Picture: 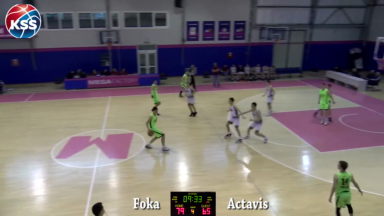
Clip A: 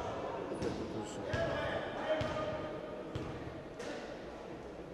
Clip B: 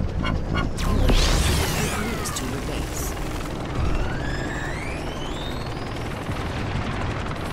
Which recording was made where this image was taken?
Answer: A